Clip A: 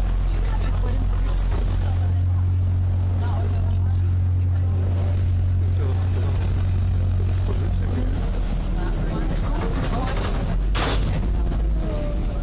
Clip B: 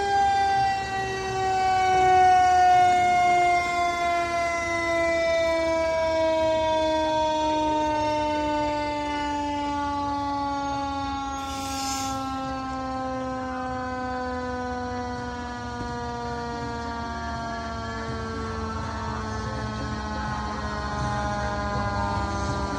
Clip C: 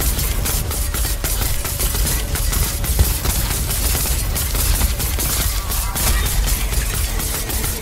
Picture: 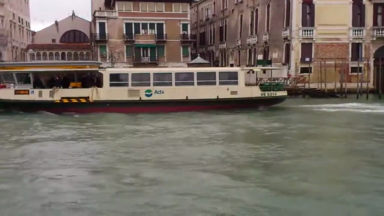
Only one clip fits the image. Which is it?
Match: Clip A